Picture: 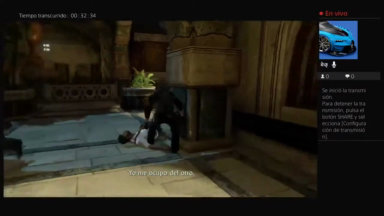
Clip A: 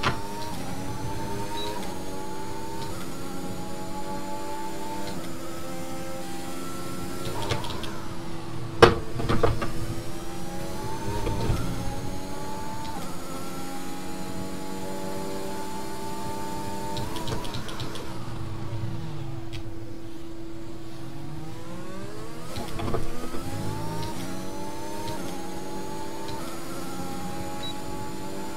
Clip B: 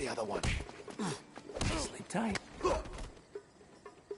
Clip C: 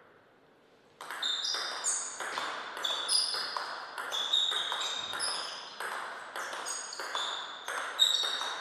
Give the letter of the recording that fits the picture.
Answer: B